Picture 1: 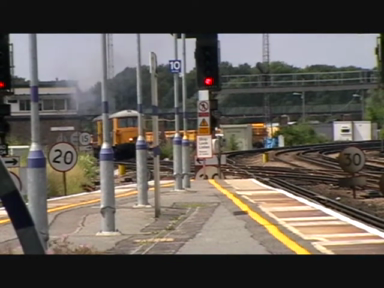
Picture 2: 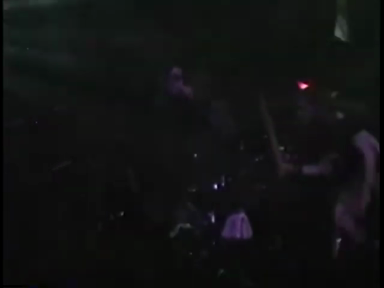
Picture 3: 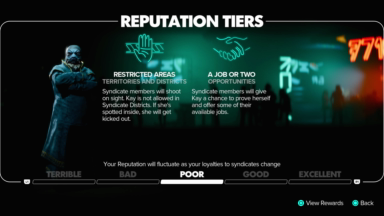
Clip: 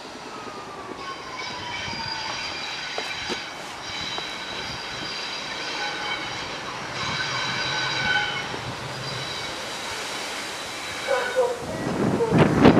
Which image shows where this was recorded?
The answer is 1